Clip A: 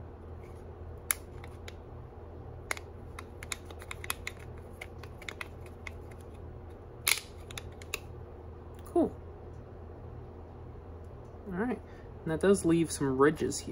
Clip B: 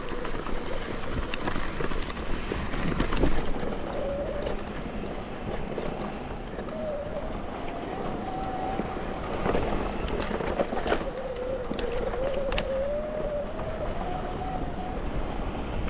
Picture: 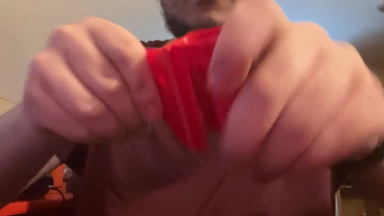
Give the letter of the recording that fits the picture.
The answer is A